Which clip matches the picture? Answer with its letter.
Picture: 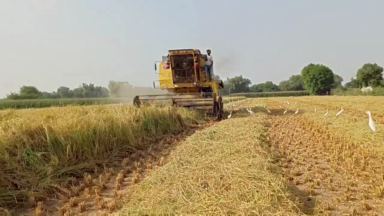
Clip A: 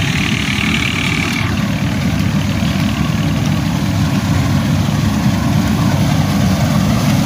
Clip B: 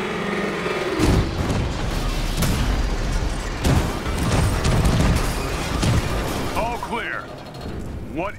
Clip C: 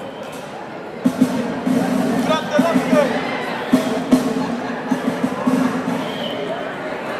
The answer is A